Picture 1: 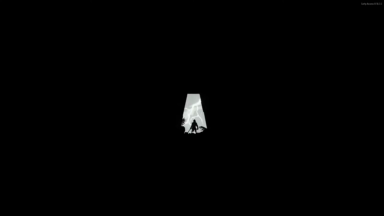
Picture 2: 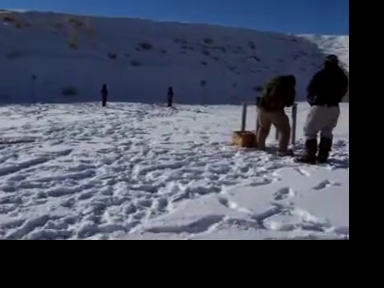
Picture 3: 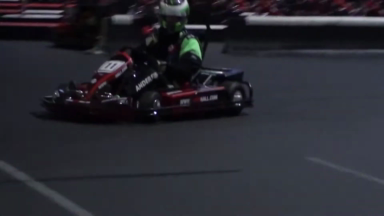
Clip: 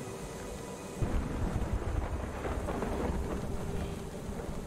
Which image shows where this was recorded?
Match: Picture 1